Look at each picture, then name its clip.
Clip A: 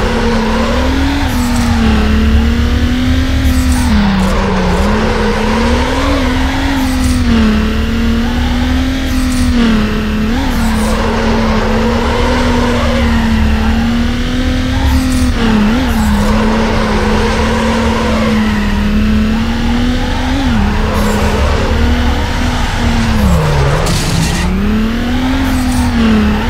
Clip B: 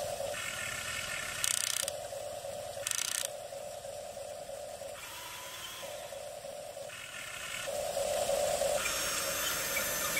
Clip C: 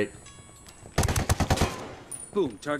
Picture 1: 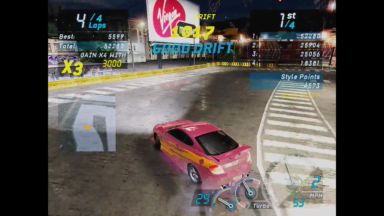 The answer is A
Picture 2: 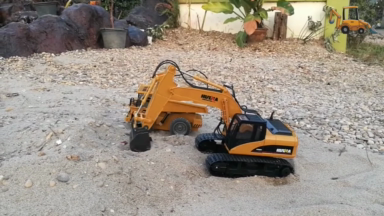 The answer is B